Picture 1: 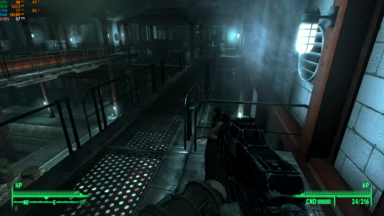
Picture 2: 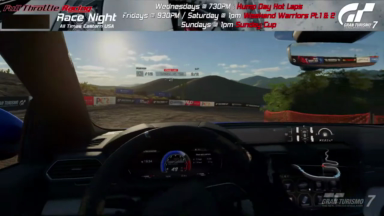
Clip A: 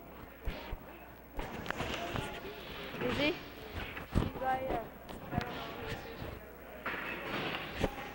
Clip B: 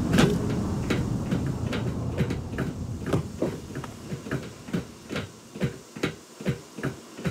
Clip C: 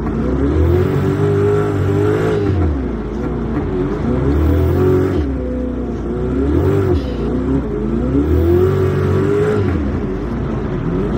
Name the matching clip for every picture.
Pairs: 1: B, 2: C